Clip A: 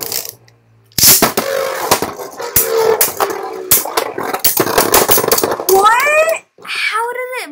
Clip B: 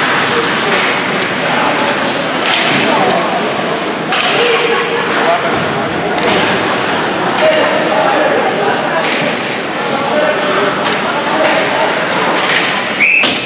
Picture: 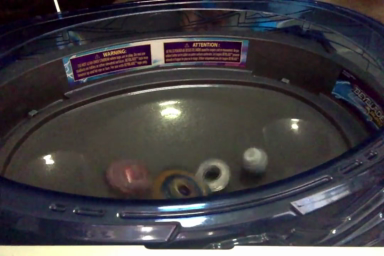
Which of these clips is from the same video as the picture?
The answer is A